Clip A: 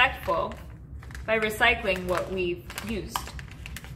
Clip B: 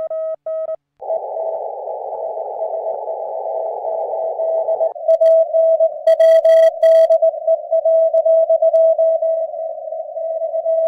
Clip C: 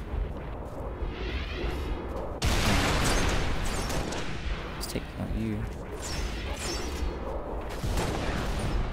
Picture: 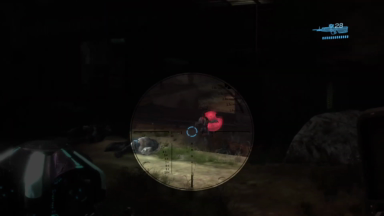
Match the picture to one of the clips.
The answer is C